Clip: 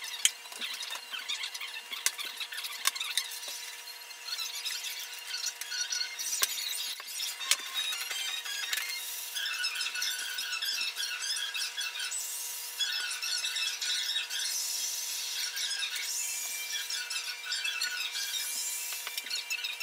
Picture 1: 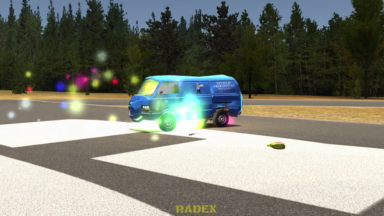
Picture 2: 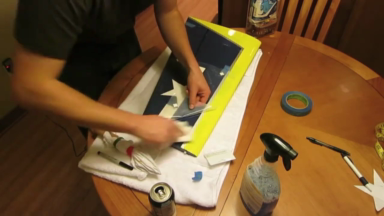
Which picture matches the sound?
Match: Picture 2